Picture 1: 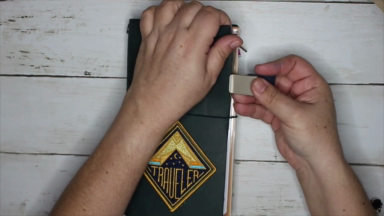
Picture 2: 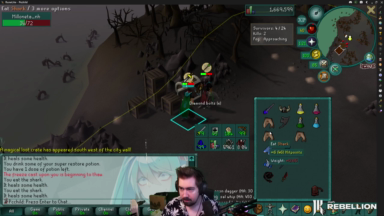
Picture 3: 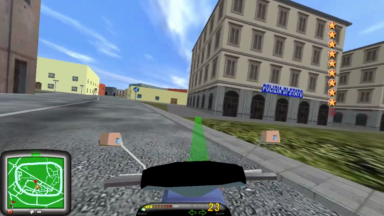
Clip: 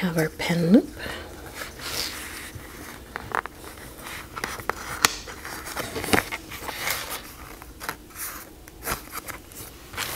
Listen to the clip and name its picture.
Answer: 1